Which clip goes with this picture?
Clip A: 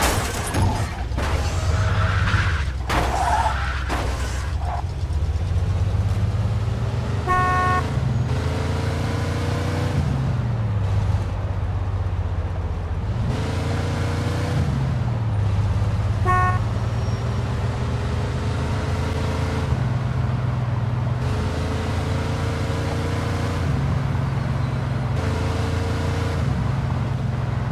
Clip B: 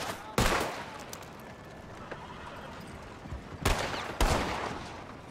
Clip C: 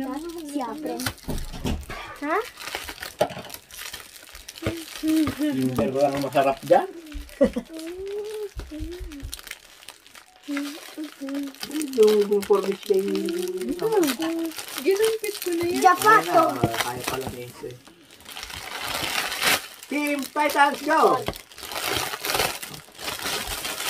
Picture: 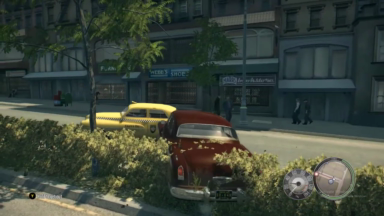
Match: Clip A